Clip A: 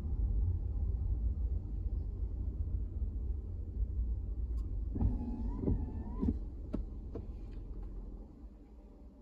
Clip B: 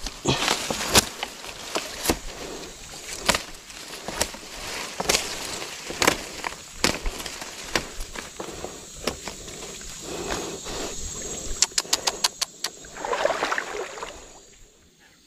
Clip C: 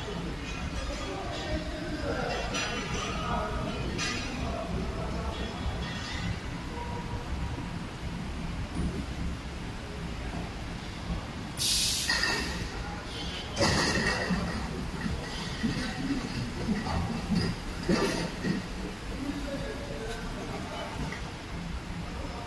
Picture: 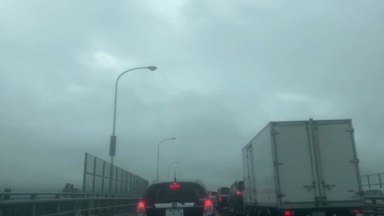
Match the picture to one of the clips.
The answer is A